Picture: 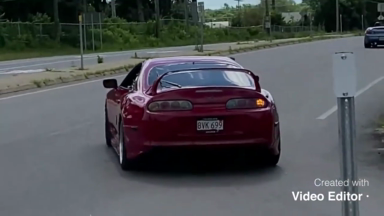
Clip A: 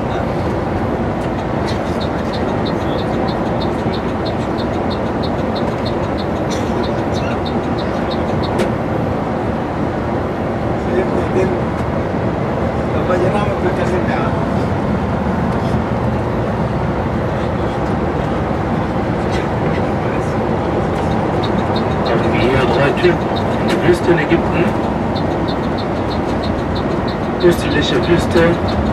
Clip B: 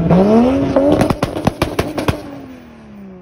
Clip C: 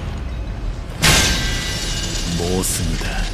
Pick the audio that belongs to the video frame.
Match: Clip B